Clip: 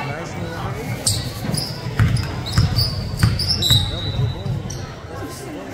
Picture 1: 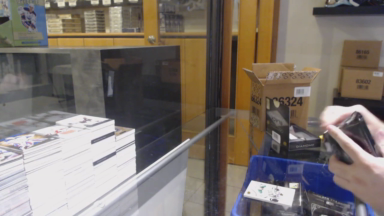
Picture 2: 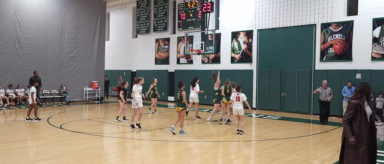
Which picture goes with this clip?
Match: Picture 2